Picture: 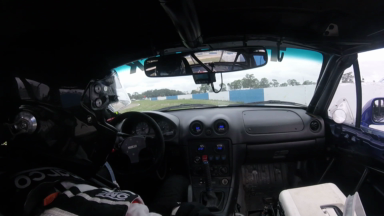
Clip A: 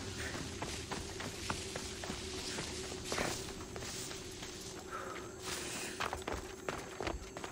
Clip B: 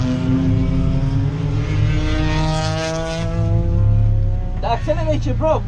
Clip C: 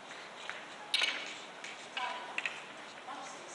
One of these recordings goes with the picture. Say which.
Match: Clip B